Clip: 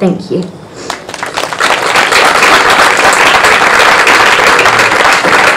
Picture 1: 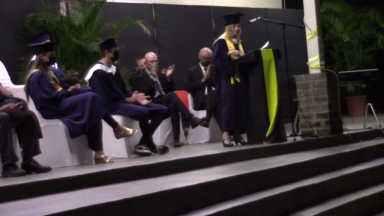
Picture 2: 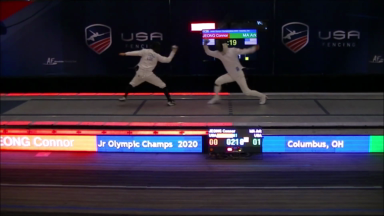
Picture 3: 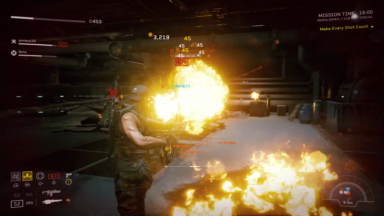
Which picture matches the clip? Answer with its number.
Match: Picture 1